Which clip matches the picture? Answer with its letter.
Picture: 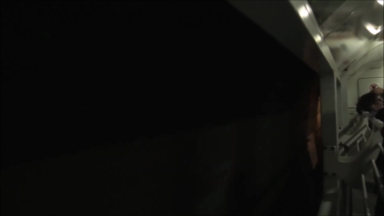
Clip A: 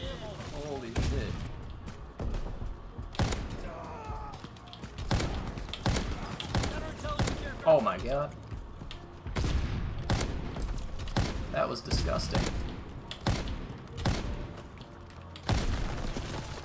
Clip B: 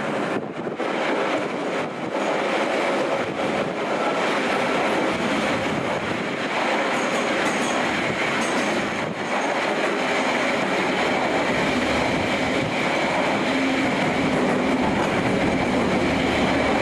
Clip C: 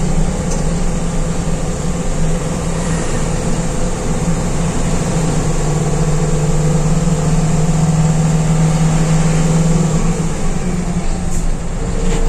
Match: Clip B